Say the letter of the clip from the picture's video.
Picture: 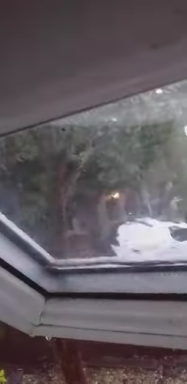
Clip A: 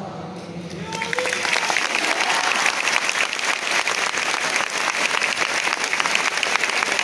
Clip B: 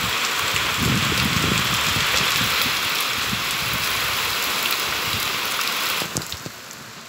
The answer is B